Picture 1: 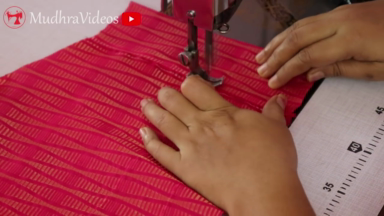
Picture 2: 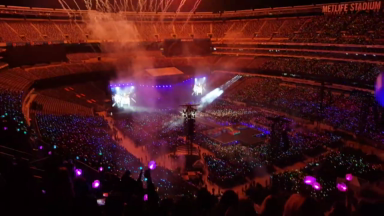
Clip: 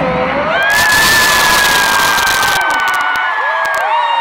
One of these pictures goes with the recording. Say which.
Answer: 2